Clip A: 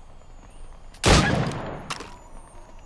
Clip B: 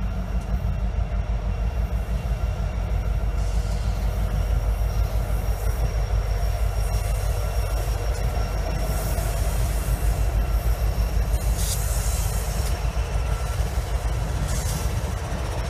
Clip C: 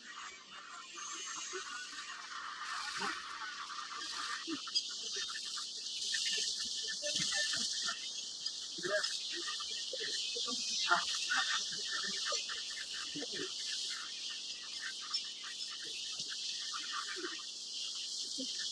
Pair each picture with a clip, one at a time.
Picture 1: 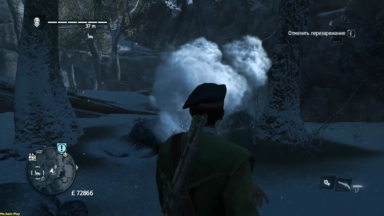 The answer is A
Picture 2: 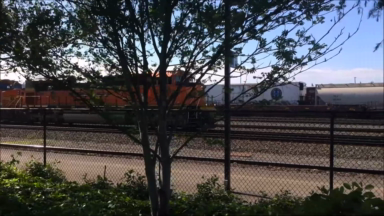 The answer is B